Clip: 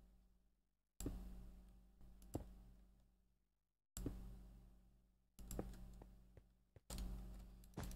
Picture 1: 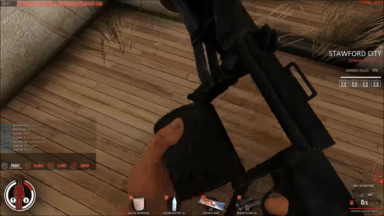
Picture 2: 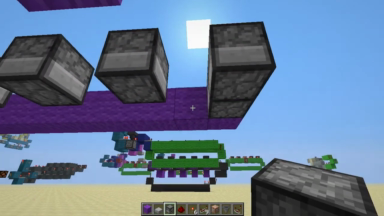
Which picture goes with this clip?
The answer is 2